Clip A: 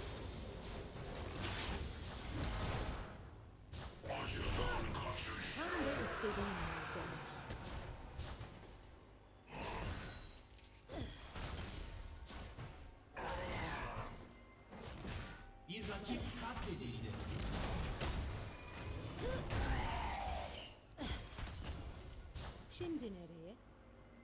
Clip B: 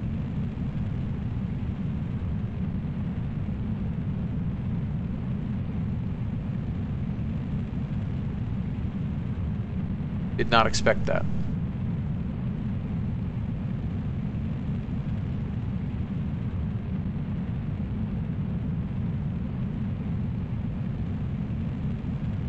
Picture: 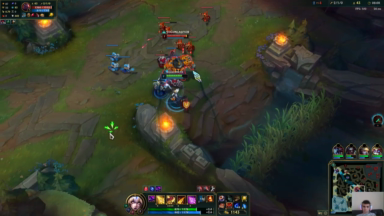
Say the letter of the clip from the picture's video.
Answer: A